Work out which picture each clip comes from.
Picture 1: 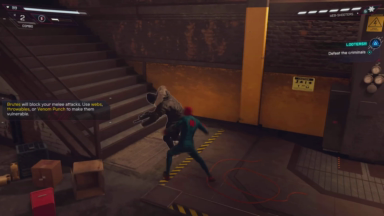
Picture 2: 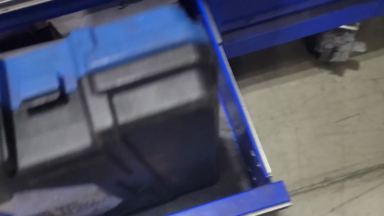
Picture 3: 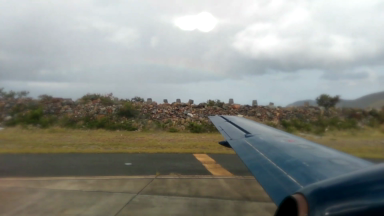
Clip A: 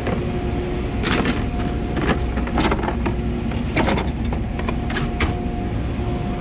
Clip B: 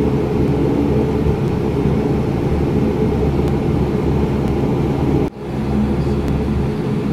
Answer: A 2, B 3